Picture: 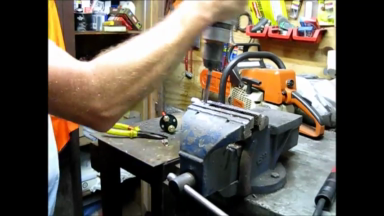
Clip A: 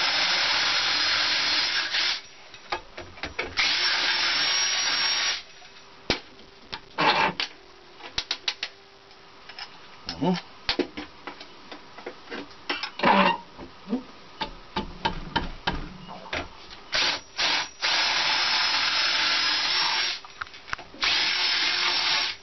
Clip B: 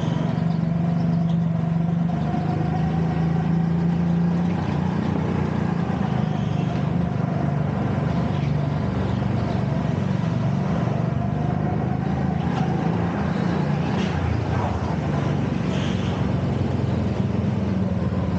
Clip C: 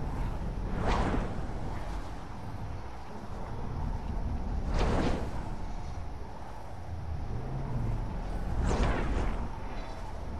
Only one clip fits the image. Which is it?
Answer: A